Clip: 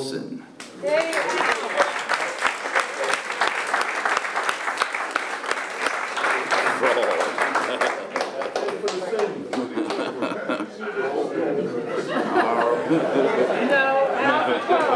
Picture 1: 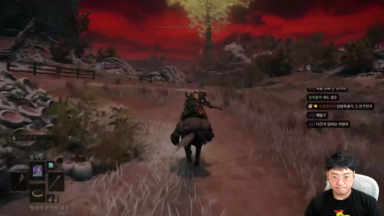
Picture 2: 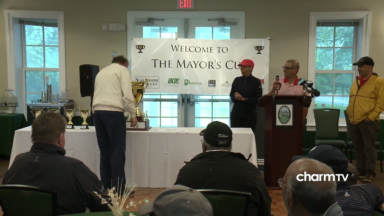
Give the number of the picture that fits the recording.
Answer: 2